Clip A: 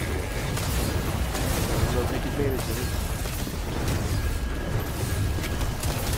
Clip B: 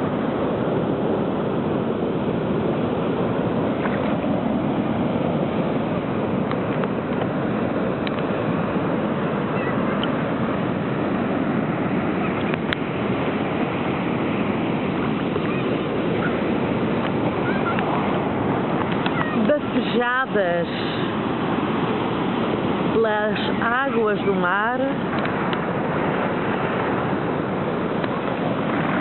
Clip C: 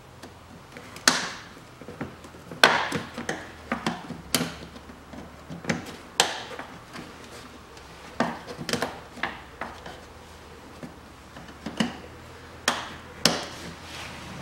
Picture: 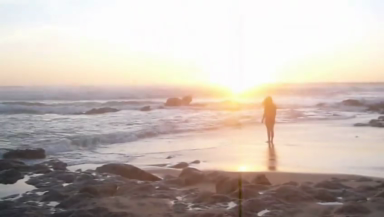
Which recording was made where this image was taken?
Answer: B